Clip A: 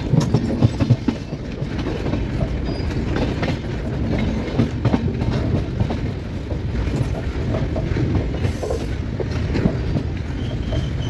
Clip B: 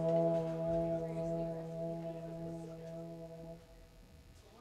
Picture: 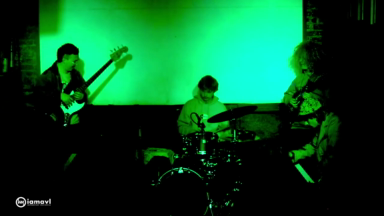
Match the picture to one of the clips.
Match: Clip B